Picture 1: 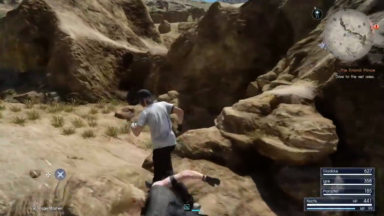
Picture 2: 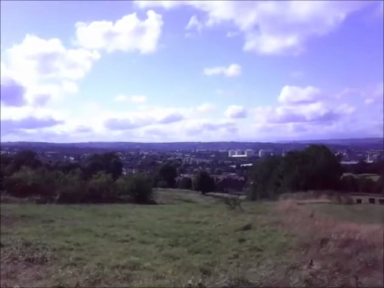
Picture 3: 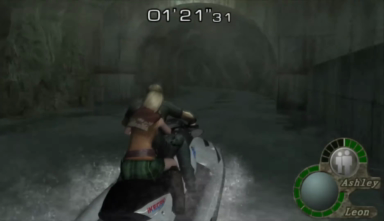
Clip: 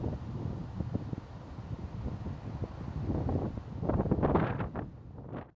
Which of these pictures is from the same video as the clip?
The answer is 2